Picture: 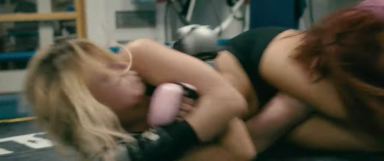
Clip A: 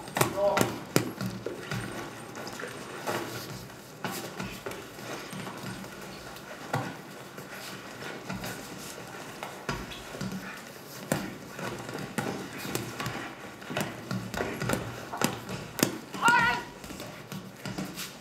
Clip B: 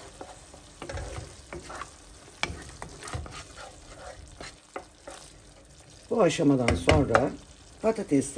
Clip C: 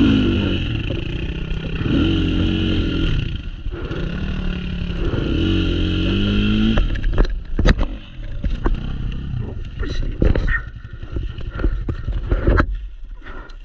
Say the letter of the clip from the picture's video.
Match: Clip A